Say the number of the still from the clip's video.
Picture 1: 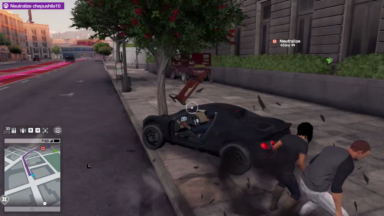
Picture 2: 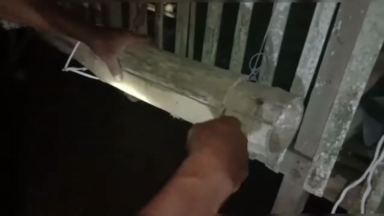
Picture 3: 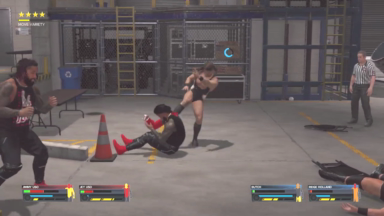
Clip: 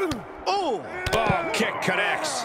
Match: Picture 3